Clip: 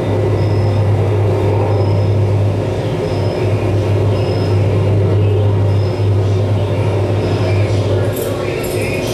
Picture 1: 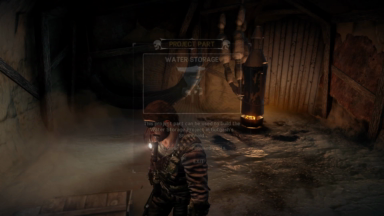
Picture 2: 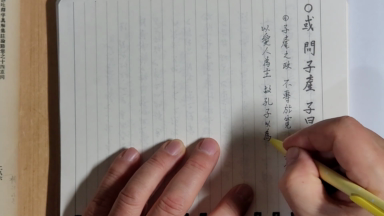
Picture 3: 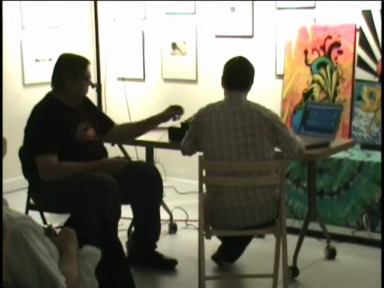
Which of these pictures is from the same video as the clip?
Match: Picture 3